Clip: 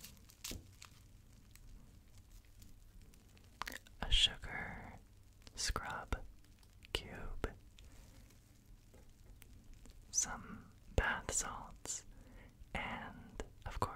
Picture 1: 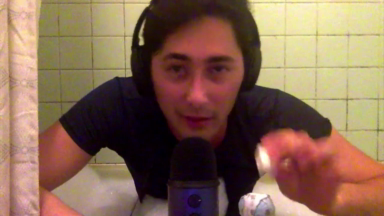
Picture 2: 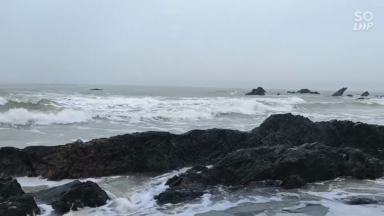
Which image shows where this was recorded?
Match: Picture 1